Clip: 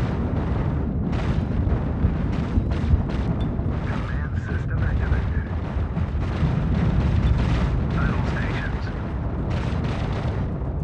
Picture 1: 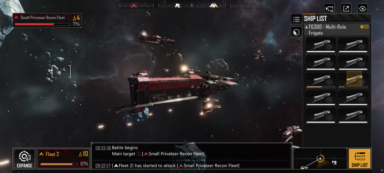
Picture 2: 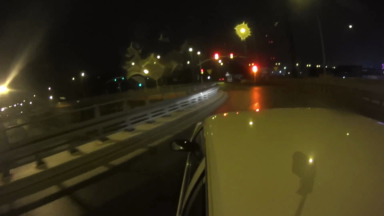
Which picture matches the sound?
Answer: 1